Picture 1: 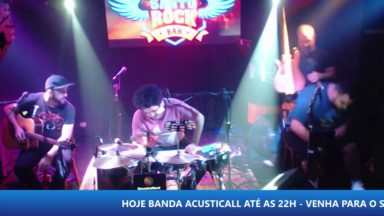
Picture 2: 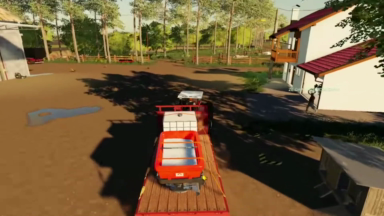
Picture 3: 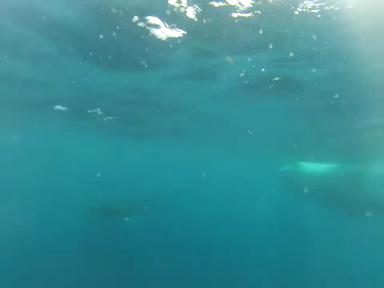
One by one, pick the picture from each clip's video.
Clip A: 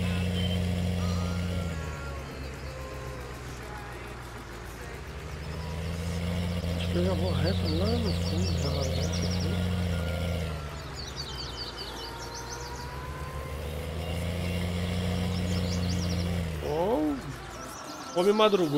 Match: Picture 2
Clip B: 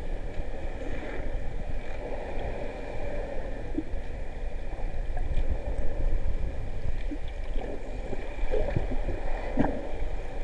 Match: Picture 3